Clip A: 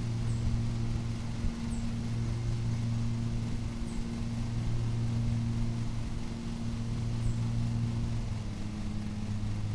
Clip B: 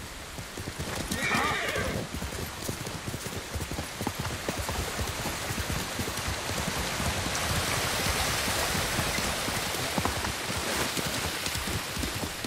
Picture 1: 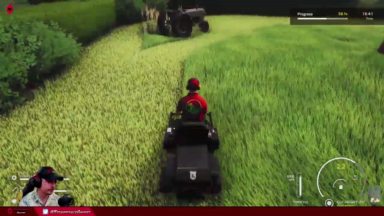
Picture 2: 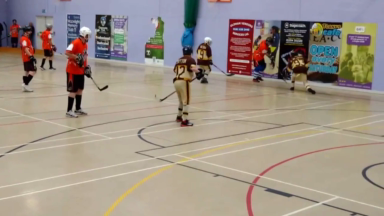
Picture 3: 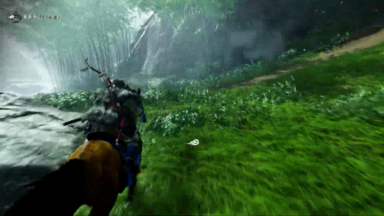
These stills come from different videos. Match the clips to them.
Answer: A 1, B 3